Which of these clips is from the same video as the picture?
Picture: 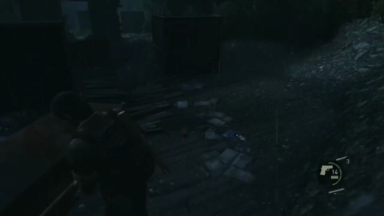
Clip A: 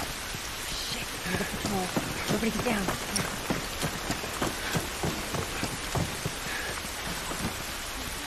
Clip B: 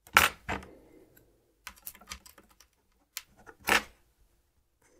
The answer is A